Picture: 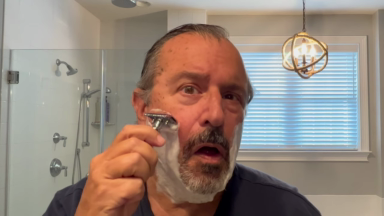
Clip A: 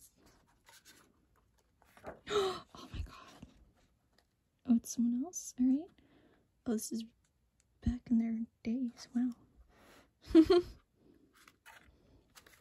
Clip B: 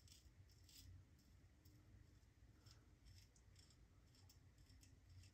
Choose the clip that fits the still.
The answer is B